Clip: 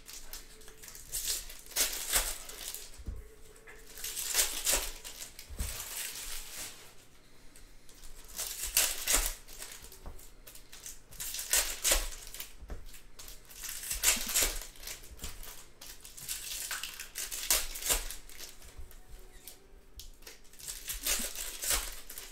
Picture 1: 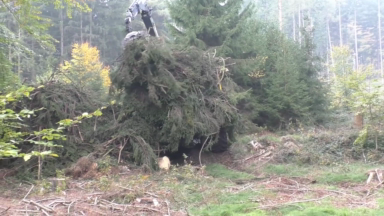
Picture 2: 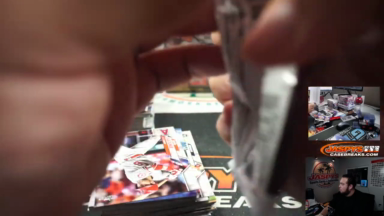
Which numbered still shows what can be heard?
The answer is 2